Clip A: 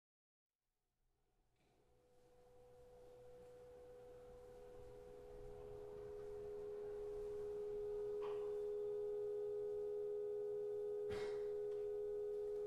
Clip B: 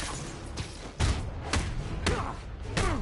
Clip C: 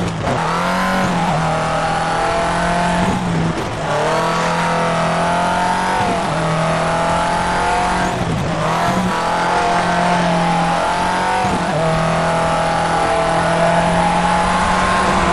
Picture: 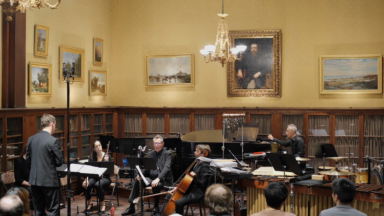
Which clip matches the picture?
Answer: A